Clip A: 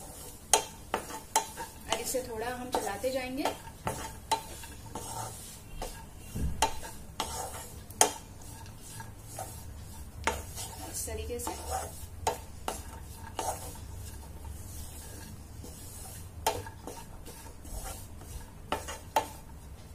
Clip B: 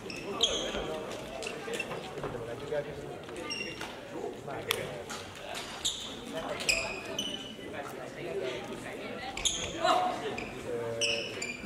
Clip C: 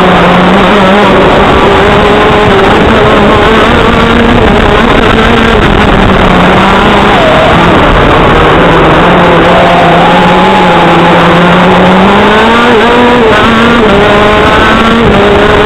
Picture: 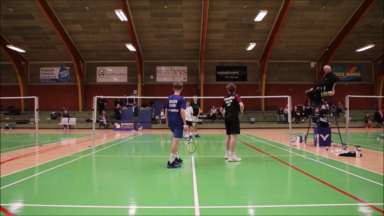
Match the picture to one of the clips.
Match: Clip B